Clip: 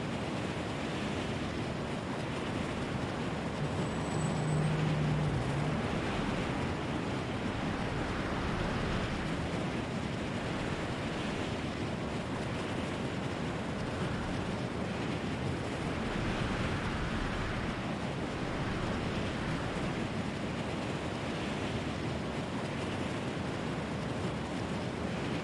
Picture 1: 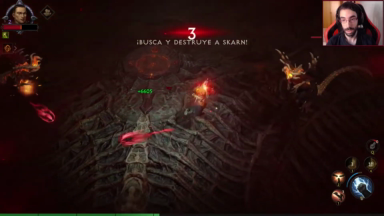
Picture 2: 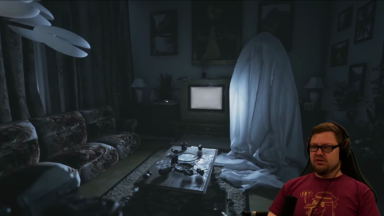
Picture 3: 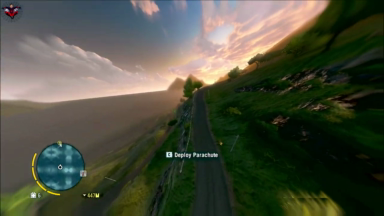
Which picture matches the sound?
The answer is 3